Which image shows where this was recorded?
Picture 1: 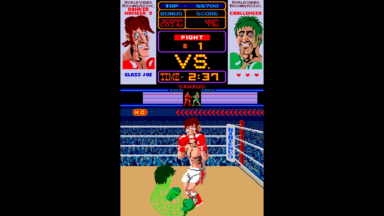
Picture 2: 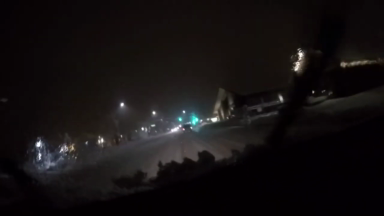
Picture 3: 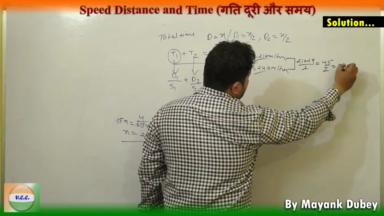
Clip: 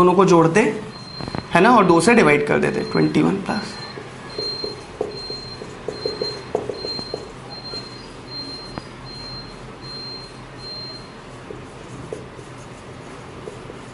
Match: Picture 3